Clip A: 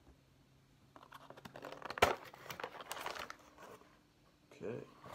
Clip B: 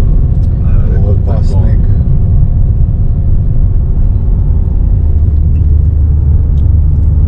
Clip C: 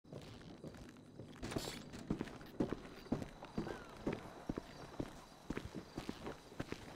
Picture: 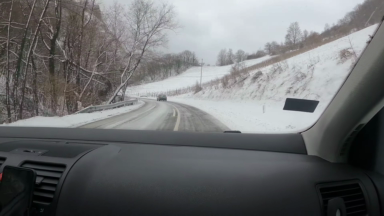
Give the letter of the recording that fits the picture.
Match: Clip B